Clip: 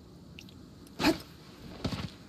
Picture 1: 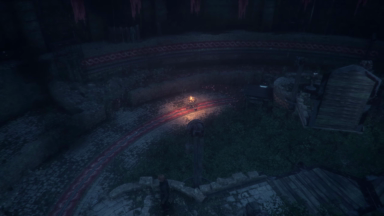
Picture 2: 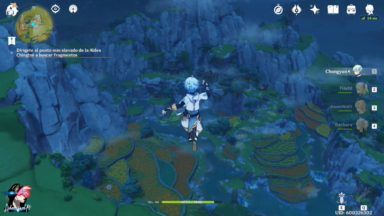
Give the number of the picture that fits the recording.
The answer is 2